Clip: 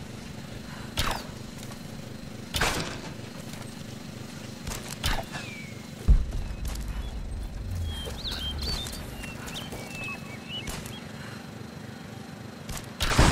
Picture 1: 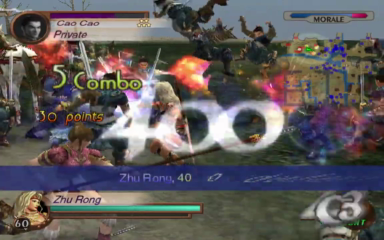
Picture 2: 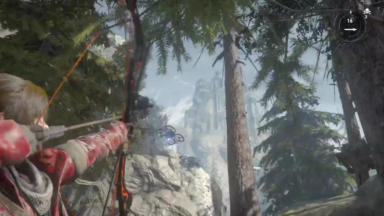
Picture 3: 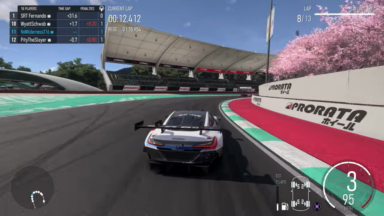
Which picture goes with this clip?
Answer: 2